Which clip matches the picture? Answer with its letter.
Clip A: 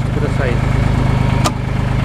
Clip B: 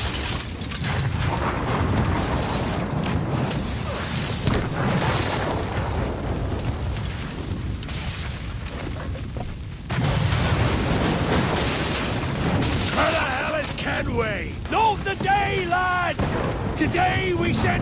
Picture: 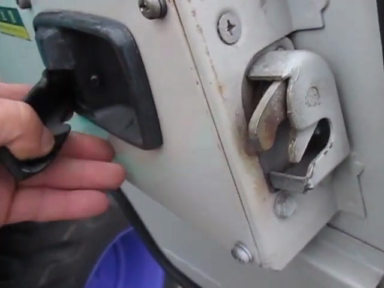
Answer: A